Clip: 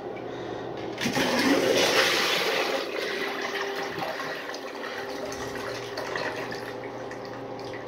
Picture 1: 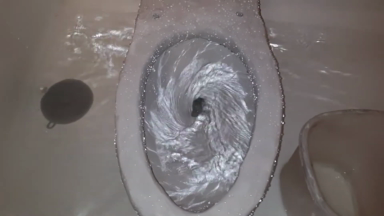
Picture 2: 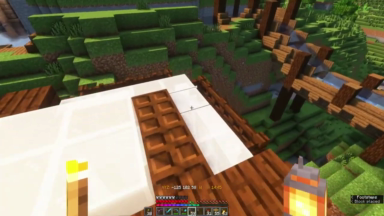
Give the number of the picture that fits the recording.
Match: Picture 1